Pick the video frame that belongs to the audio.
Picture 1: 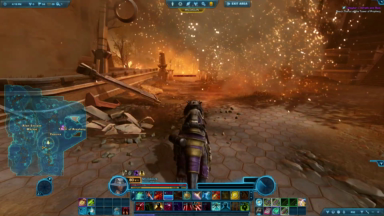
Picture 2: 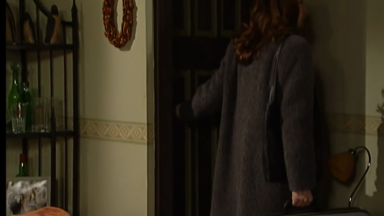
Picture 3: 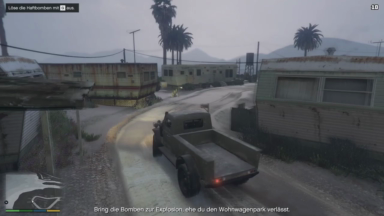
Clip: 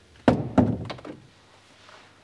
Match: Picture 2